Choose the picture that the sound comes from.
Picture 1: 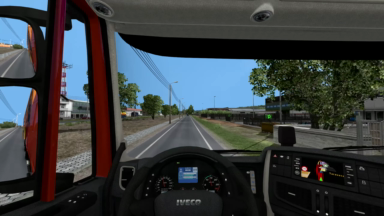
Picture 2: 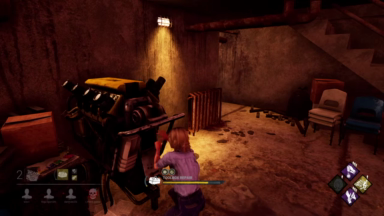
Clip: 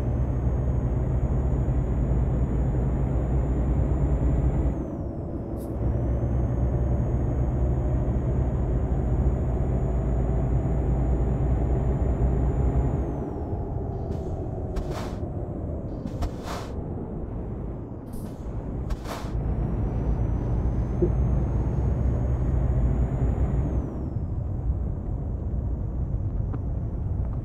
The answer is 1